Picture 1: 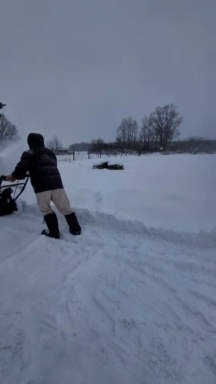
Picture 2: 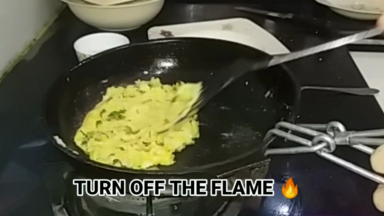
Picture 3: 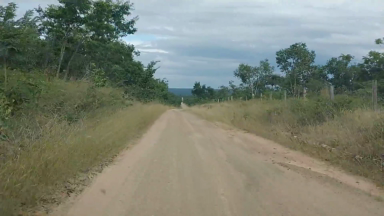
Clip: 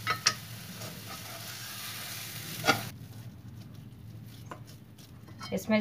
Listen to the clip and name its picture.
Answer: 2